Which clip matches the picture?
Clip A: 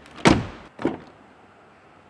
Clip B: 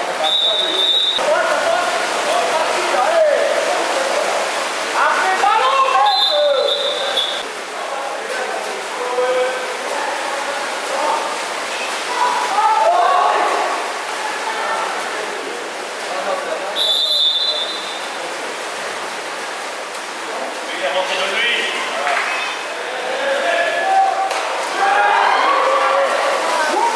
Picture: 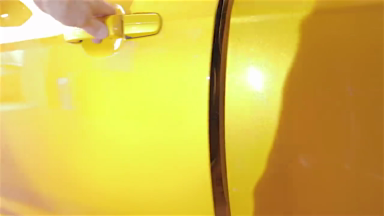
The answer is A